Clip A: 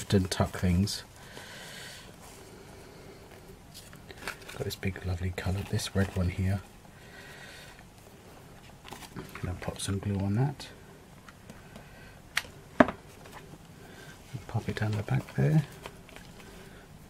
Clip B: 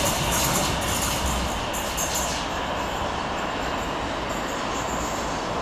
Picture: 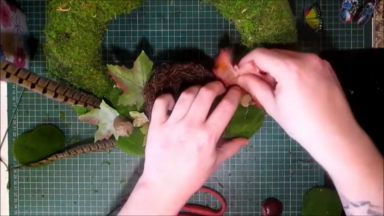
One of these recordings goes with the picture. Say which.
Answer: A